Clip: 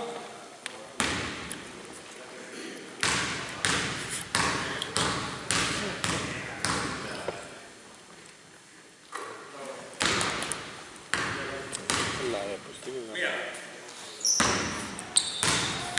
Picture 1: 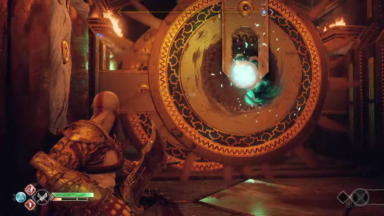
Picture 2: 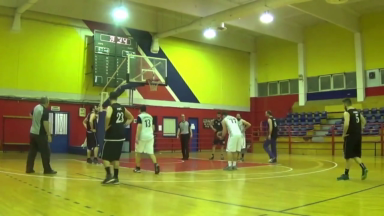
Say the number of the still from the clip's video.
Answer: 2